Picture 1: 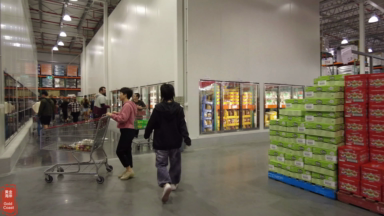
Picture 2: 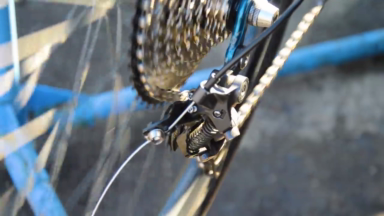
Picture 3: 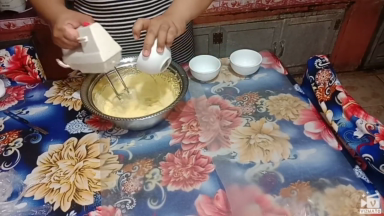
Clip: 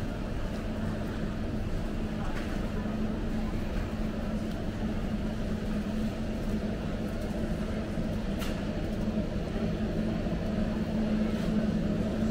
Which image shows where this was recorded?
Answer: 1